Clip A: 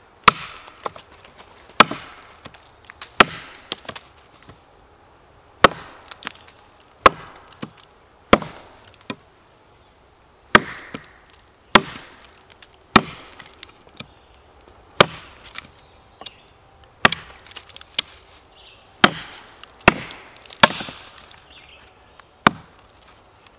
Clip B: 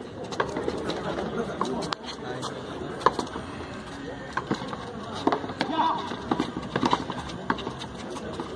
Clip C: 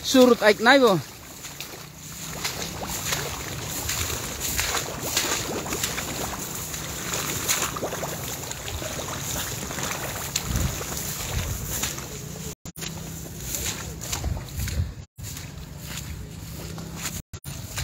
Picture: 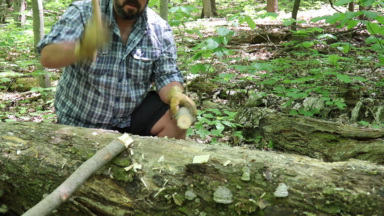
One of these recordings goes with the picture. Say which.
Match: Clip A